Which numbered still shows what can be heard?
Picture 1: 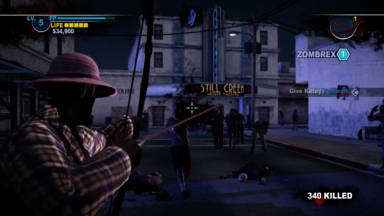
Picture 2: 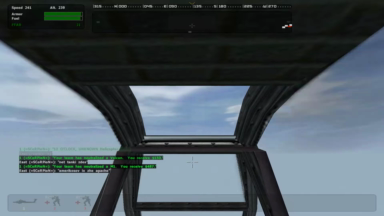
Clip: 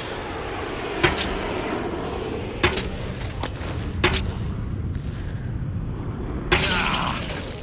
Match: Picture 1